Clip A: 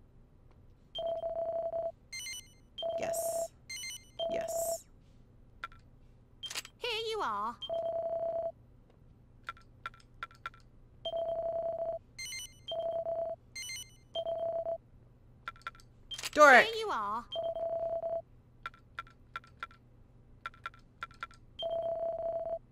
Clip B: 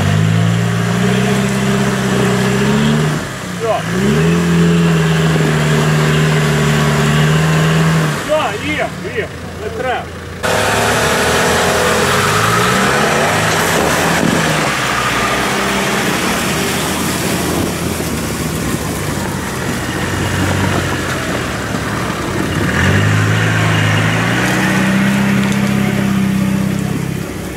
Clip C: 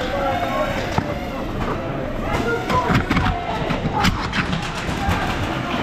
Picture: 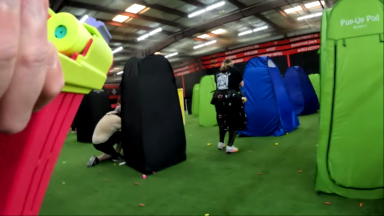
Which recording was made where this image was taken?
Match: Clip C